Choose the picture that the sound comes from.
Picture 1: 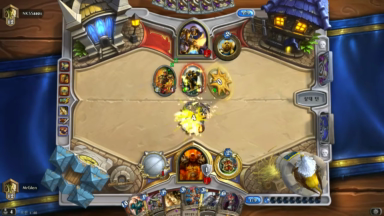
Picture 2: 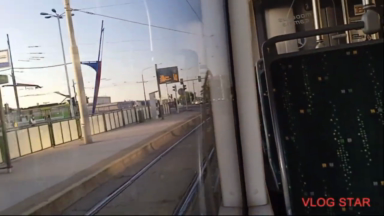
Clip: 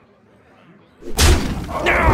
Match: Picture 1